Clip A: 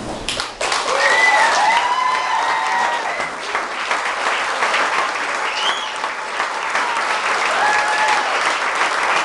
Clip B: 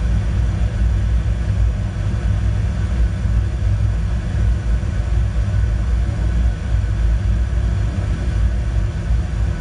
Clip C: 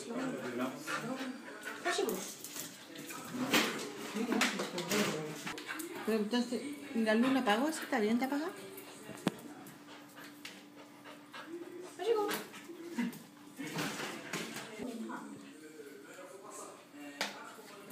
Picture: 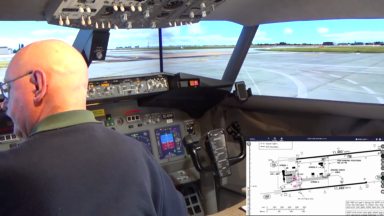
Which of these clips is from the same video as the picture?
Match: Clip B